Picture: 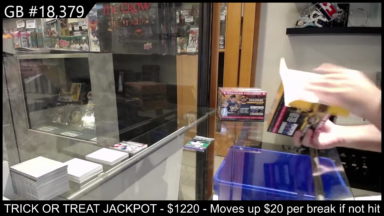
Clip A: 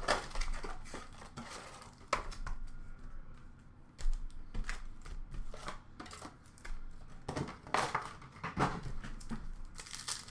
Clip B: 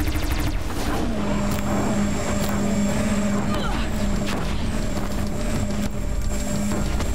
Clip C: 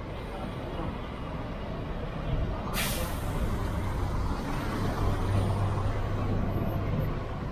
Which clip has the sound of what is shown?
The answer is A